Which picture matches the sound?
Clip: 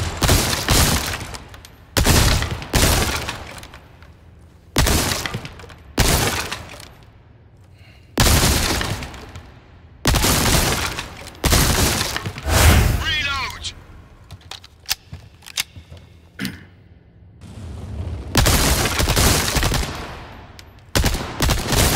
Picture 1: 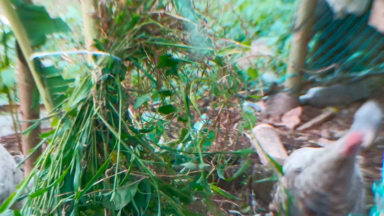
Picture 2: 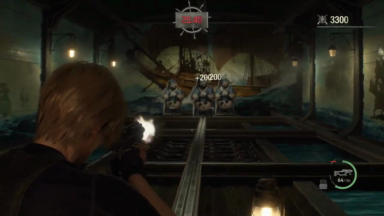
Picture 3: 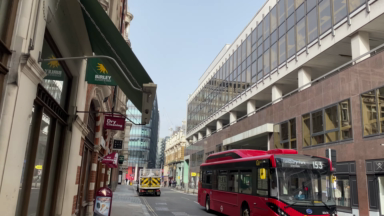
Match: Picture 2